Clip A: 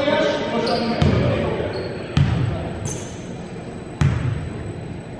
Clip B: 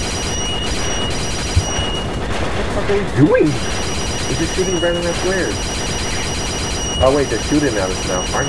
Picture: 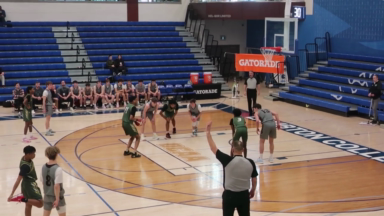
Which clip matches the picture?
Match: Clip A